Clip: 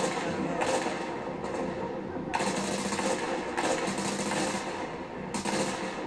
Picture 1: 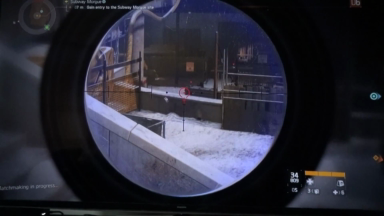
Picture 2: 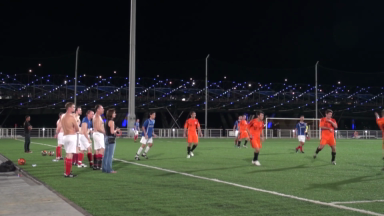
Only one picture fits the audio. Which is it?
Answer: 1